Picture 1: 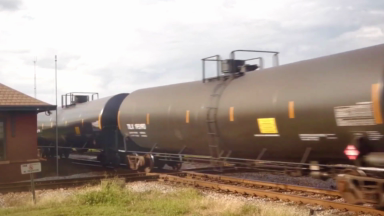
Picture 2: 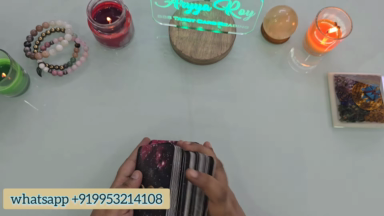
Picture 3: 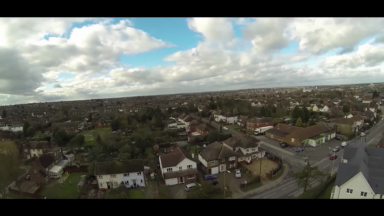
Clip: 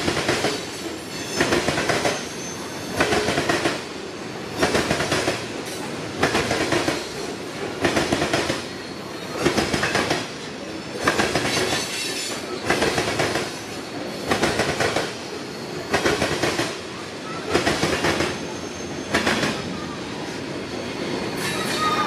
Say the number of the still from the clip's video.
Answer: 1